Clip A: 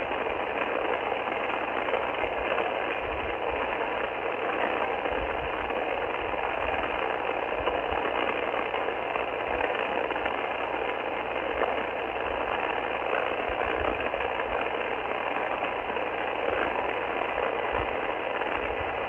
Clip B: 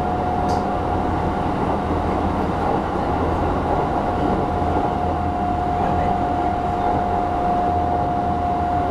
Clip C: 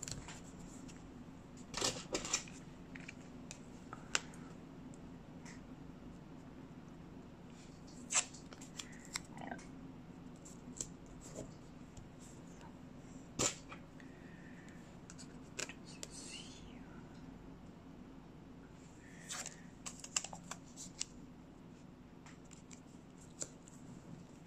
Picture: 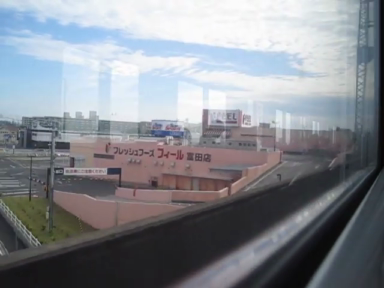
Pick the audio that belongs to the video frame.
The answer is B